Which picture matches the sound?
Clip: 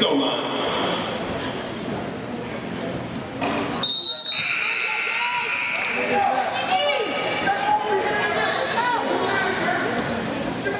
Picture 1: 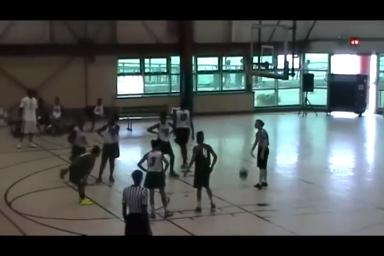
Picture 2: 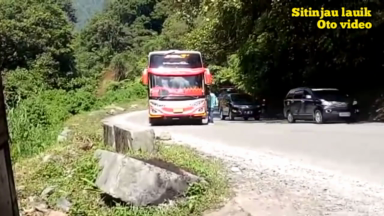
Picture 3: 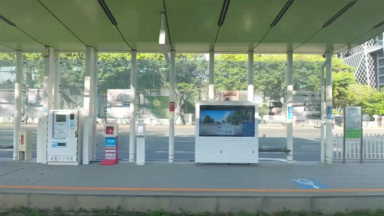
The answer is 1